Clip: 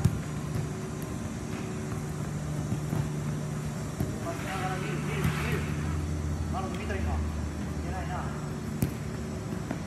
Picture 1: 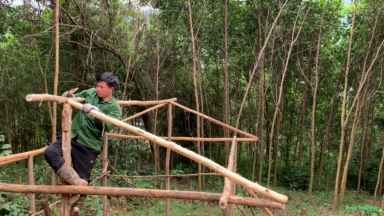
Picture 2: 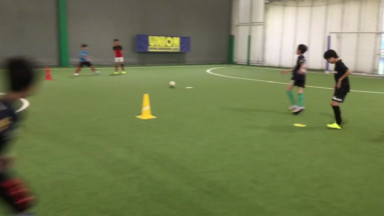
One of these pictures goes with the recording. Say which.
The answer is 2